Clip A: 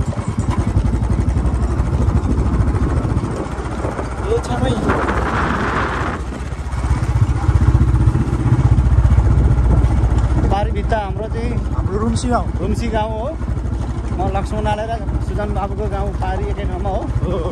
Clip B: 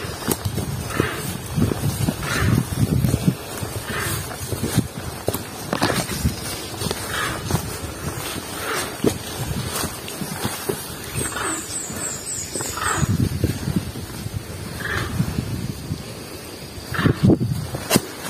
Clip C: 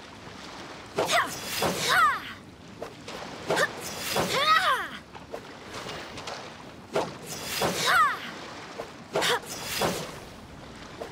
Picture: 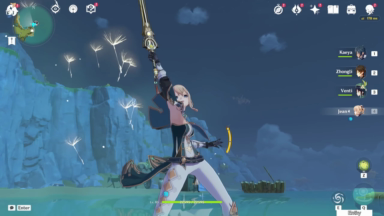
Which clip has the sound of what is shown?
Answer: C